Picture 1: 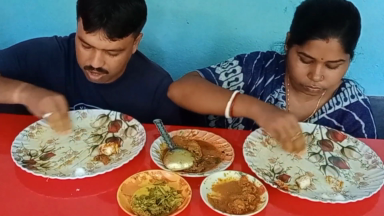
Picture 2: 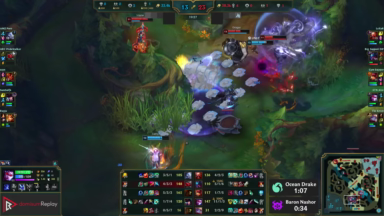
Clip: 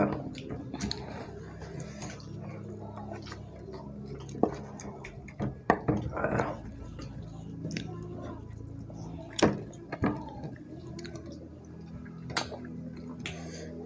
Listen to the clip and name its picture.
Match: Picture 1